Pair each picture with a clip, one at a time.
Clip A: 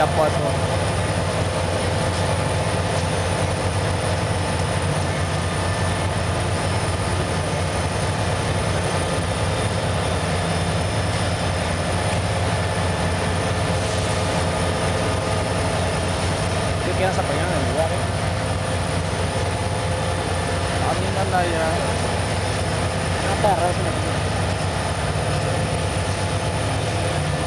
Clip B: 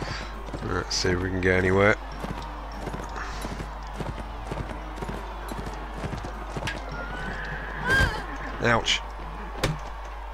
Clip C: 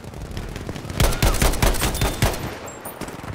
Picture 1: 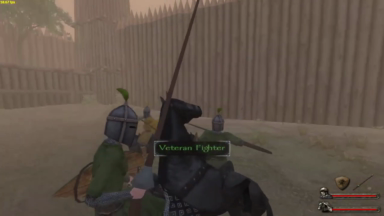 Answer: B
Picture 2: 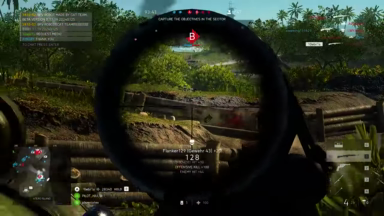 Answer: C